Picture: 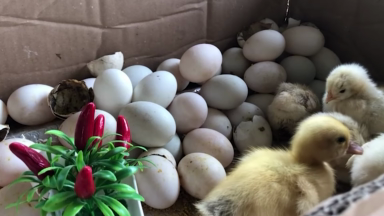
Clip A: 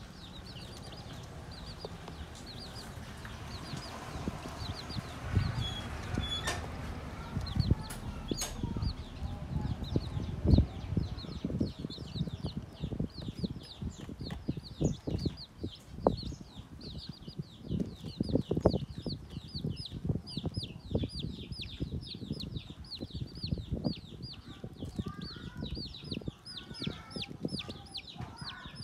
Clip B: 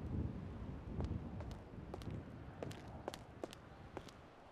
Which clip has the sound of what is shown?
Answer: A